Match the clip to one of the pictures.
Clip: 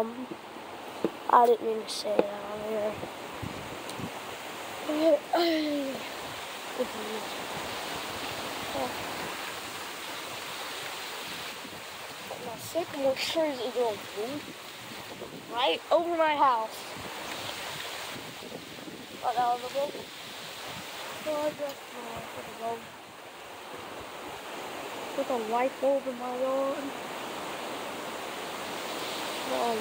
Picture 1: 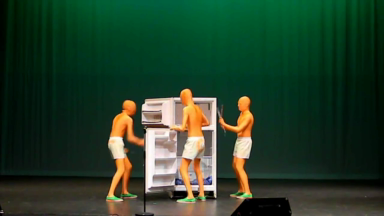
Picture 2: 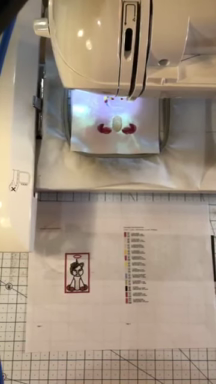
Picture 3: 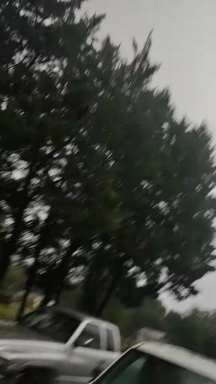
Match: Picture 3